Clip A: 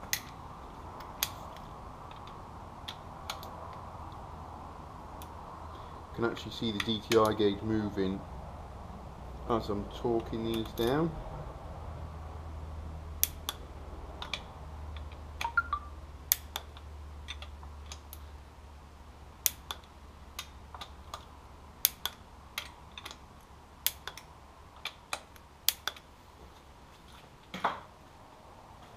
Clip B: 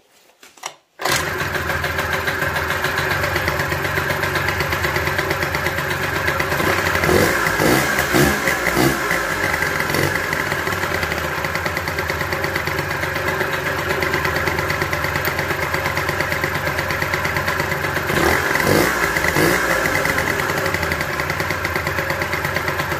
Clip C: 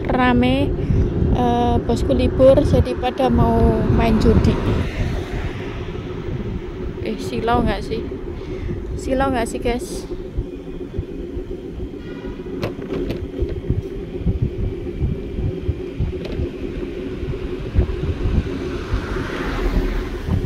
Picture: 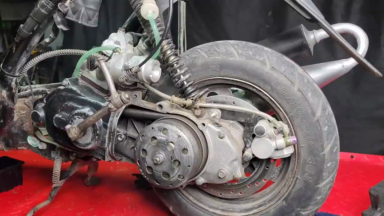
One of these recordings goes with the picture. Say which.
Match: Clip B